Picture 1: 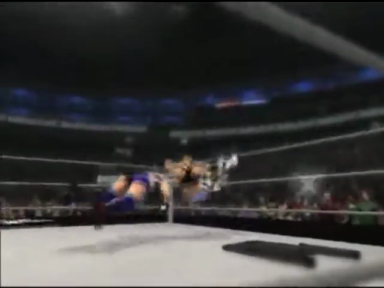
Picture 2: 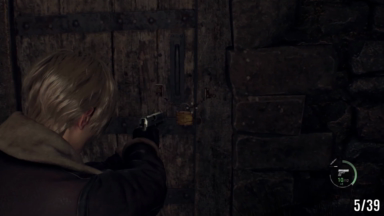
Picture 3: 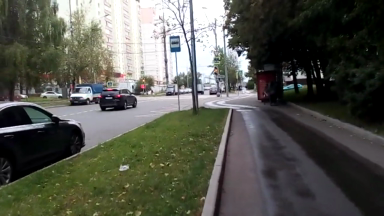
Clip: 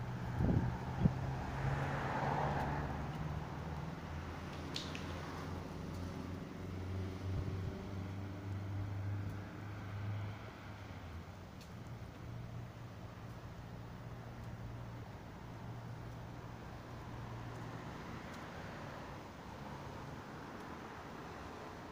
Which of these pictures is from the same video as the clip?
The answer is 3